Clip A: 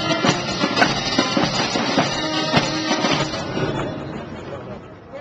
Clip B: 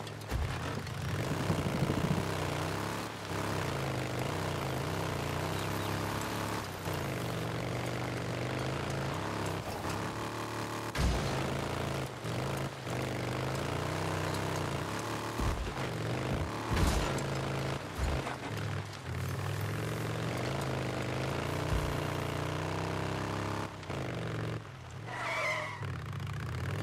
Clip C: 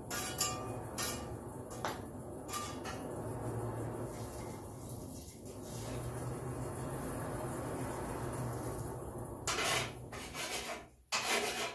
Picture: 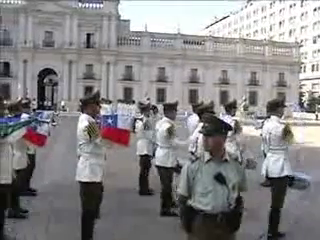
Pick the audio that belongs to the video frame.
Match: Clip A